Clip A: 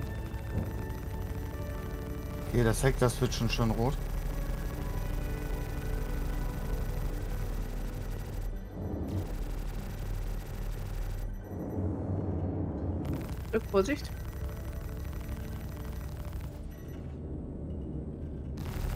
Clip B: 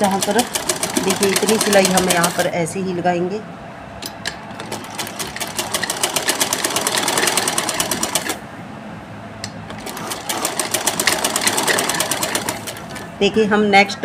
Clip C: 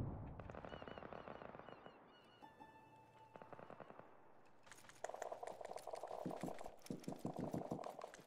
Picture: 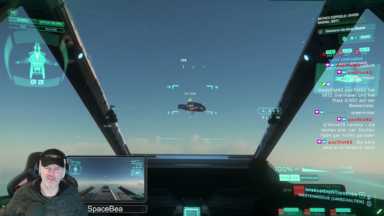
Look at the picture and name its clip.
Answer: A